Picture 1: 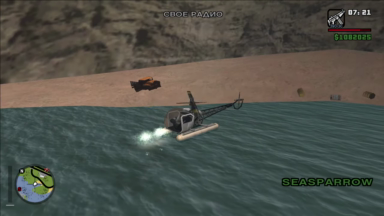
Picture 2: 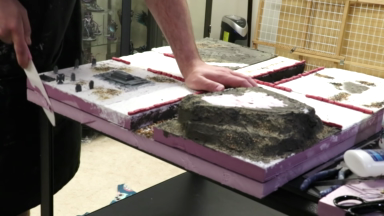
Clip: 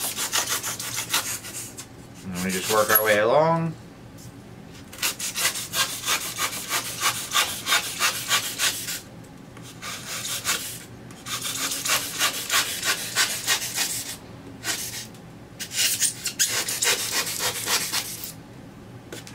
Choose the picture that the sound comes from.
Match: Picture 2